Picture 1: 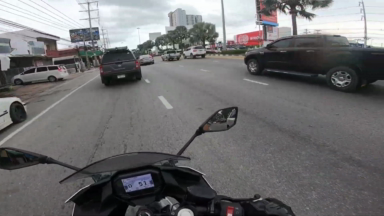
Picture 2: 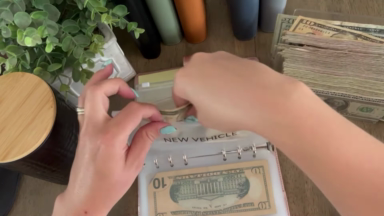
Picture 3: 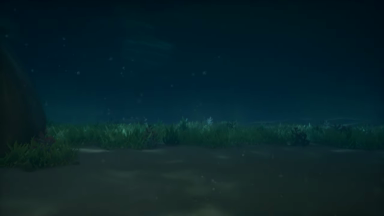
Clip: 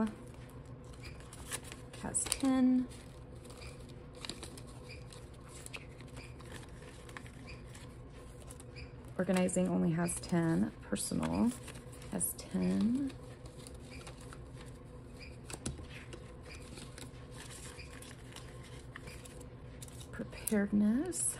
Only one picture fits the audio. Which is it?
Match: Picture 2